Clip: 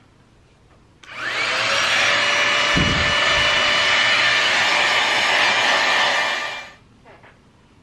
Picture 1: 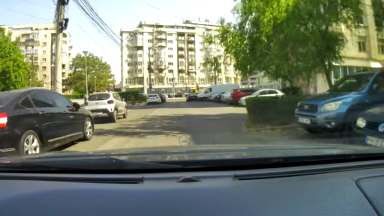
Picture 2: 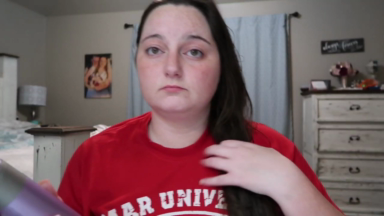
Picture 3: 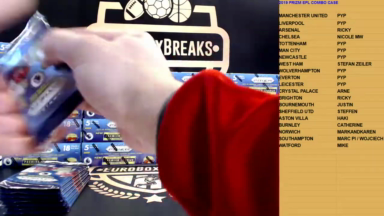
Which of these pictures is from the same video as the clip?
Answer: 2